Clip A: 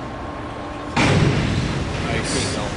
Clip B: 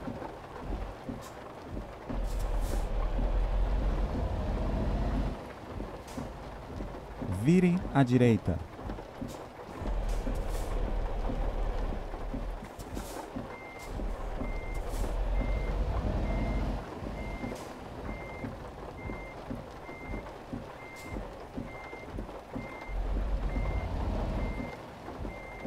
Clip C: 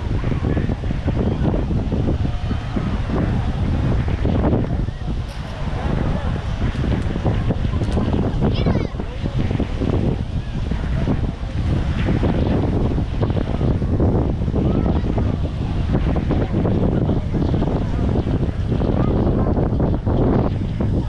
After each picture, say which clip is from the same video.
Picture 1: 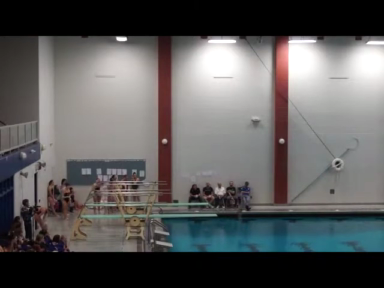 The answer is A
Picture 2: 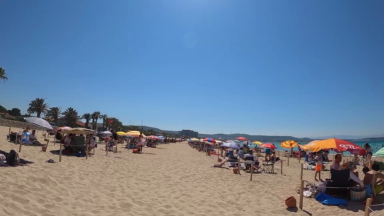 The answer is C